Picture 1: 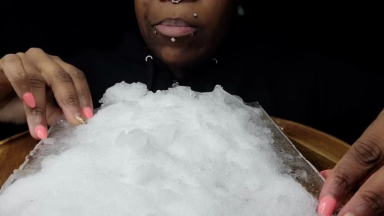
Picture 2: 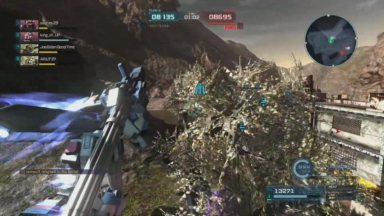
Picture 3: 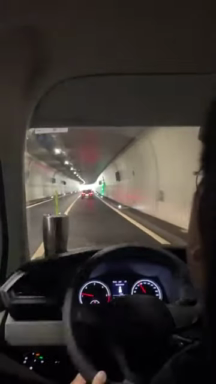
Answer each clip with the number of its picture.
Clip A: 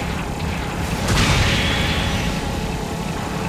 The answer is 2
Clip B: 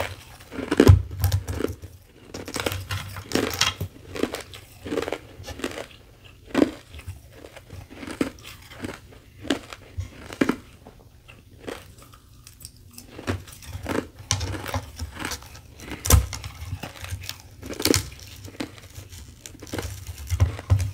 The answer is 1